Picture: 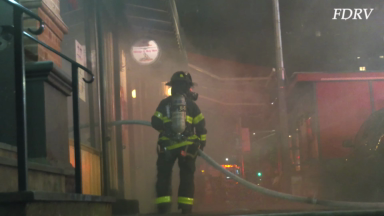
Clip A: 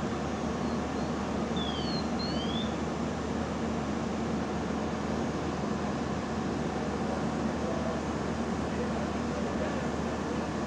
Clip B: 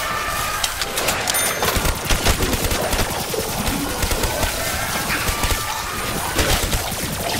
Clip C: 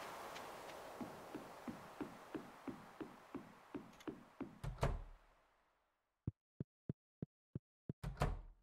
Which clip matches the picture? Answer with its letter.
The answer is A